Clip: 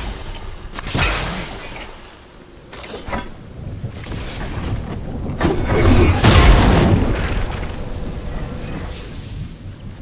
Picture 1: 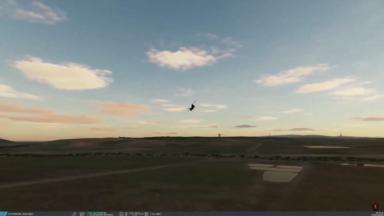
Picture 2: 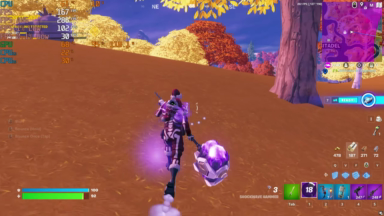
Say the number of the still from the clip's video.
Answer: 2